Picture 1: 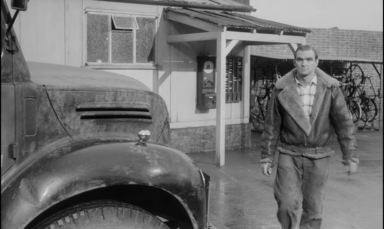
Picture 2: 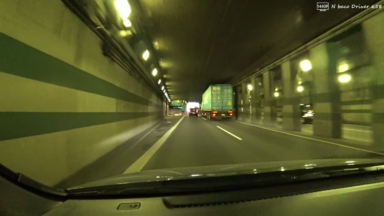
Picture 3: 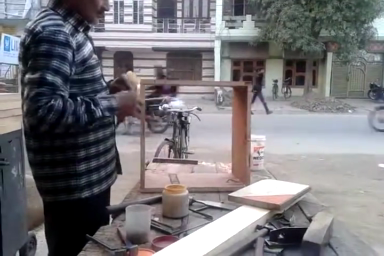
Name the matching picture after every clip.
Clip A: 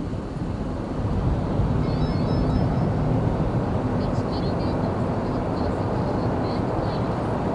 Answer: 2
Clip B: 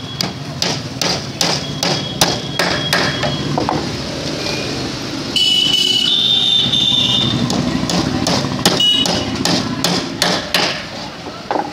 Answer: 3